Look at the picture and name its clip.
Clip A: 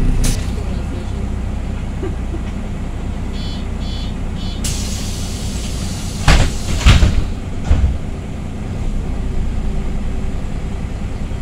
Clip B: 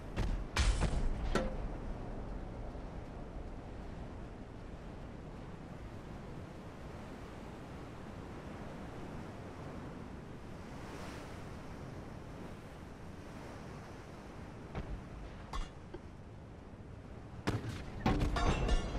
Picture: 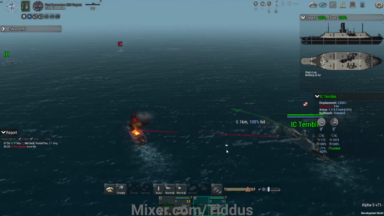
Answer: B